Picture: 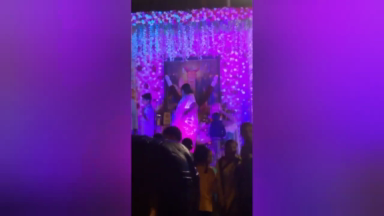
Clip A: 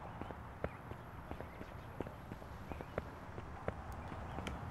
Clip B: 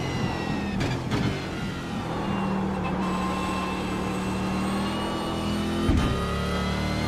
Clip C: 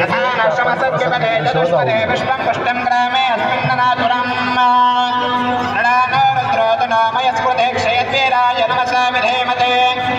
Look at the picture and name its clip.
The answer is C